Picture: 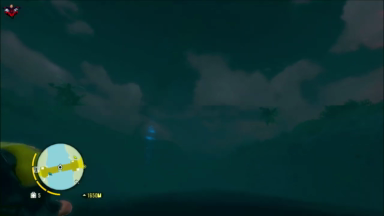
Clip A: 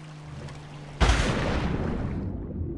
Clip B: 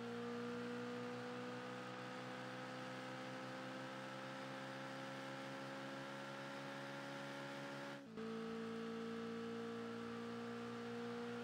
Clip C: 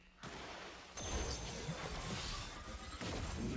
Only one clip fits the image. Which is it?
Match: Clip A